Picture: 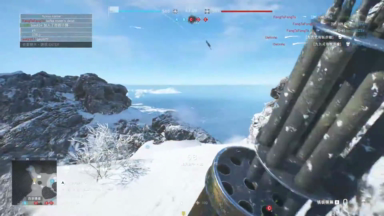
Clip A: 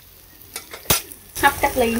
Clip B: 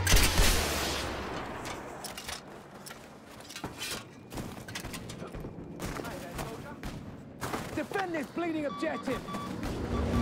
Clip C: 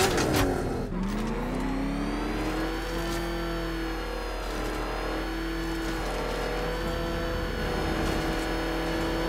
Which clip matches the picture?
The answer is B